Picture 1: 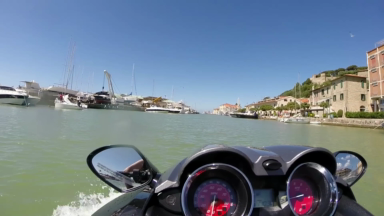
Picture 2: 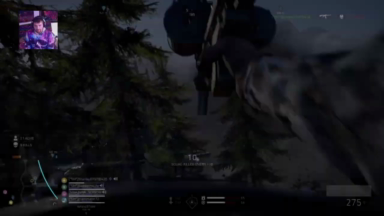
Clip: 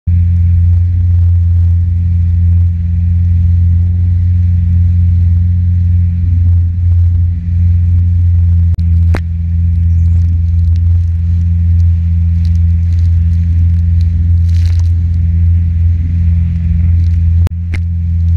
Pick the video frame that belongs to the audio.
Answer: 1